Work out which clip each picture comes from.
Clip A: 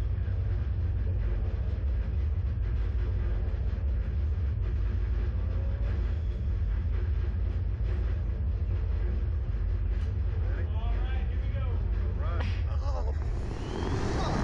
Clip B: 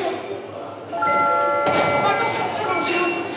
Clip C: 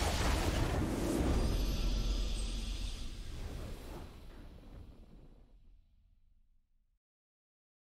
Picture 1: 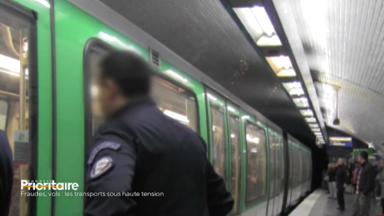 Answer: B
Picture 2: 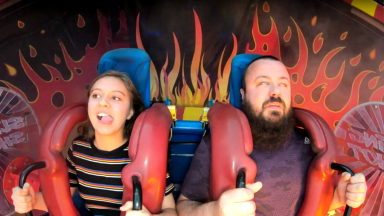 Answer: A